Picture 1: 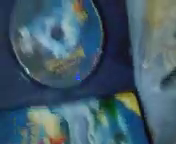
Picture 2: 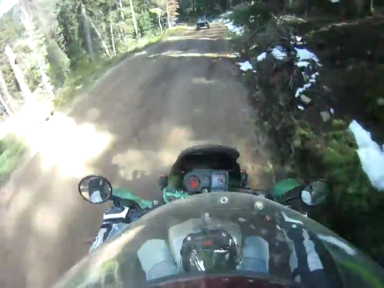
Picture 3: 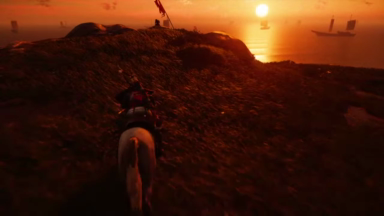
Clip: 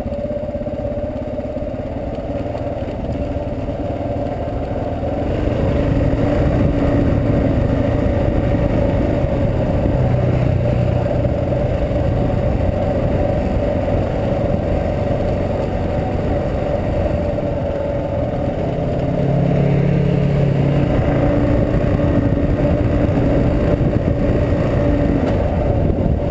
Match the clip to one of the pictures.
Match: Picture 2